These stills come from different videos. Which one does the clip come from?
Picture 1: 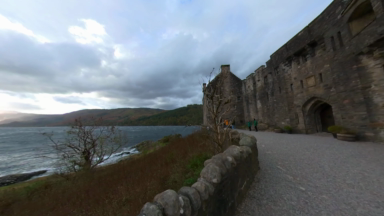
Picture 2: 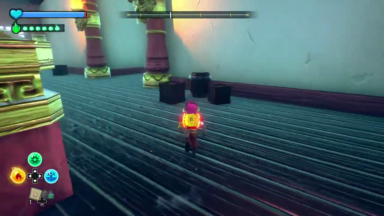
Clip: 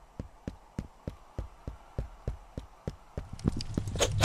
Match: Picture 2